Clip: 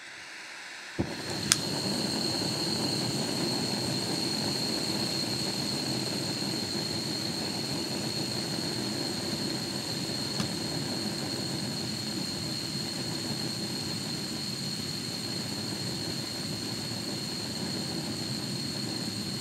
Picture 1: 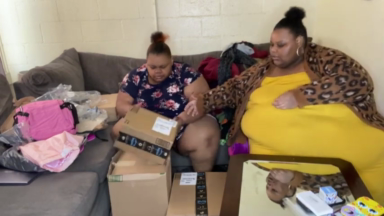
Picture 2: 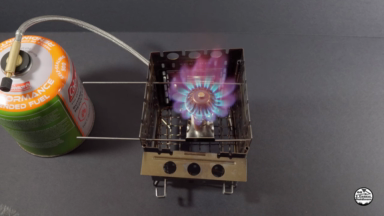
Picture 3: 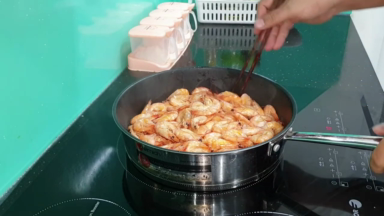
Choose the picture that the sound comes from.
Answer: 2